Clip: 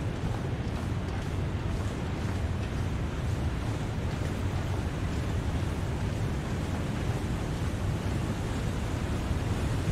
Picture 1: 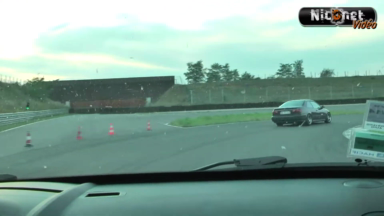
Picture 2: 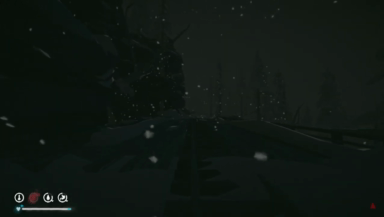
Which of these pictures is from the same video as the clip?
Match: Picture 2